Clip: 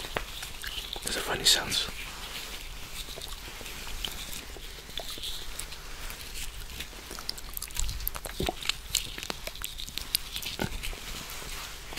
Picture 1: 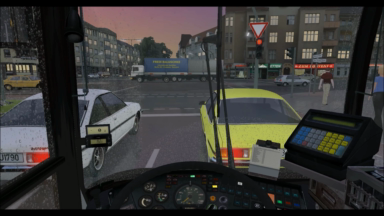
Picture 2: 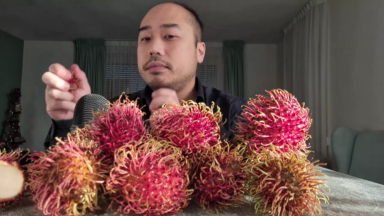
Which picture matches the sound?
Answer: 2